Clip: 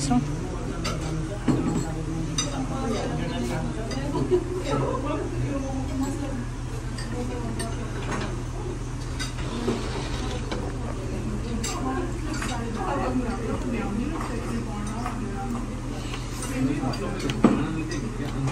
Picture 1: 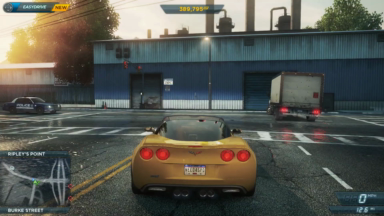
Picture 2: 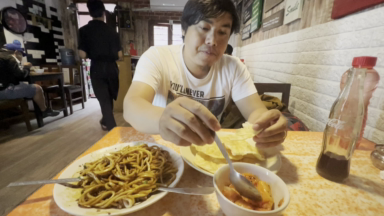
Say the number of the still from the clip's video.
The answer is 2